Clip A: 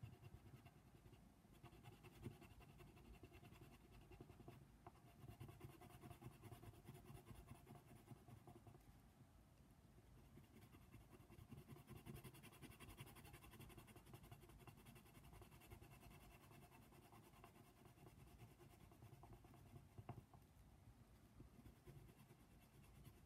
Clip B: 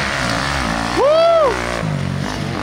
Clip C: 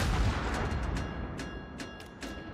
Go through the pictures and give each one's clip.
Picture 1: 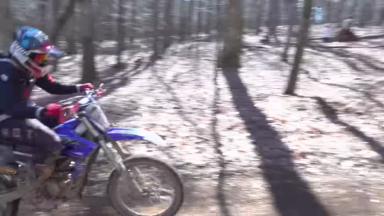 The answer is B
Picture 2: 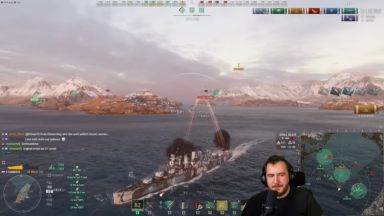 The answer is C